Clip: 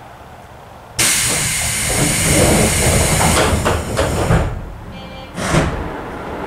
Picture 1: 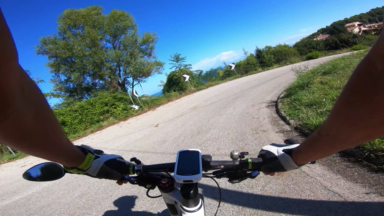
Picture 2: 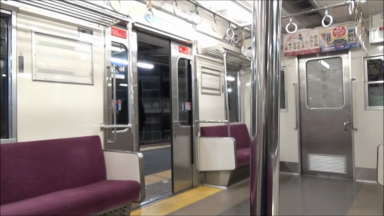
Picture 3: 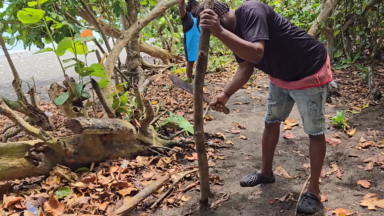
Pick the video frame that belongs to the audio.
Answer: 2